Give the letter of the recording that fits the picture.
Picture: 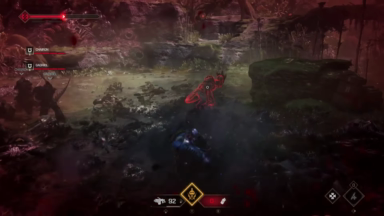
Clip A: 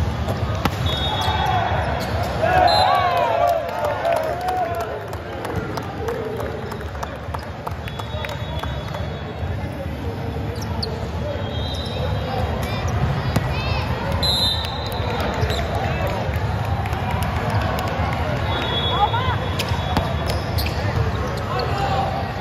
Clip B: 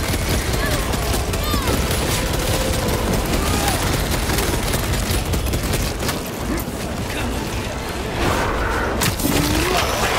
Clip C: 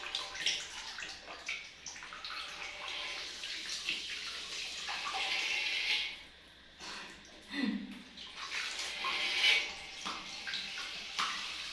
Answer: B